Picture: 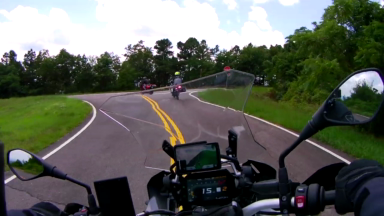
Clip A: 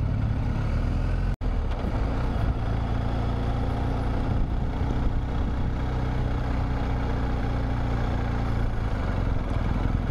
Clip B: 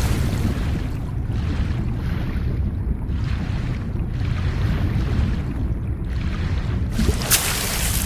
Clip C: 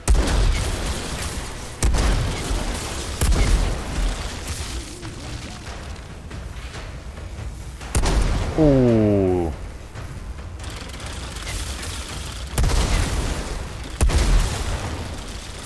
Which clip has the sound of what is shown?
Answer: A